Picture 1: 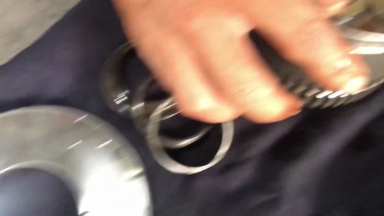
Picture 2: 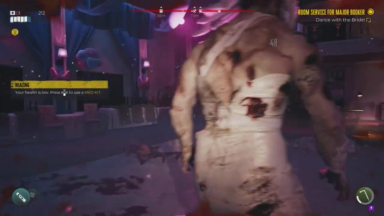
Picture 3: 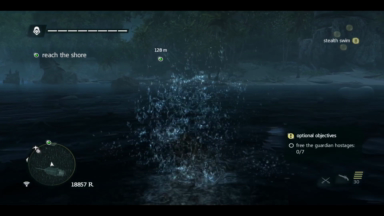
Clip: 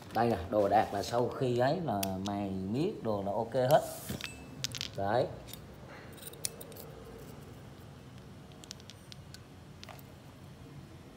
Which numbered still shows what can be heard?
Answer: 1